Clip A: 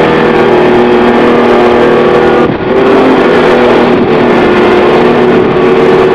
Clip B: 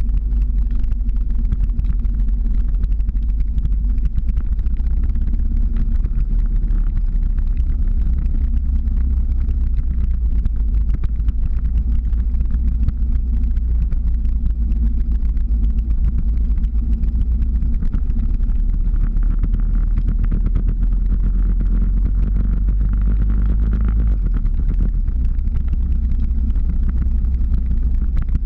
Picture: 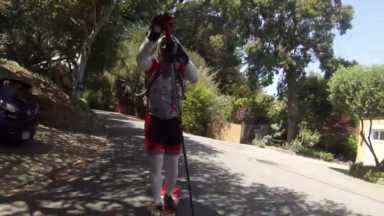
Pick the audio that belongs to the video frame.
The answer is B